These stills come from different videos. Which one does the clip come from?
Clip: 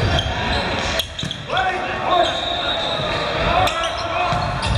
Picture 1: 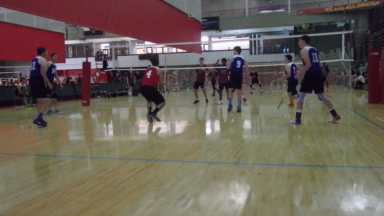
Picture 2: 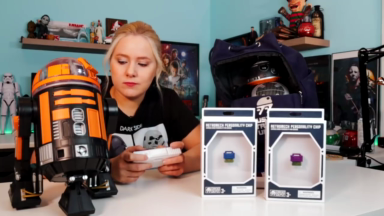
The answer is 1